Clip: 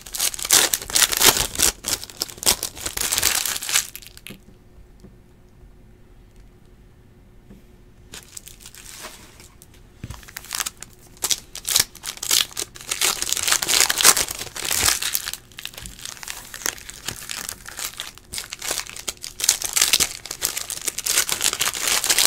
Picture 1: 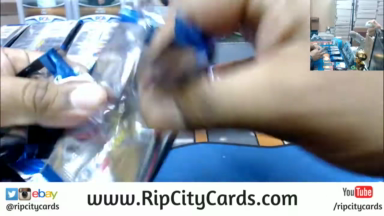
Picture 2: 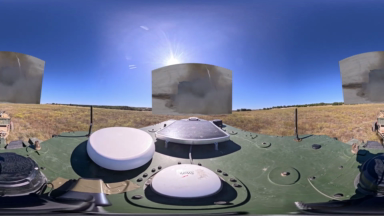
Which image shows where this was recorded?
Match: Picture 1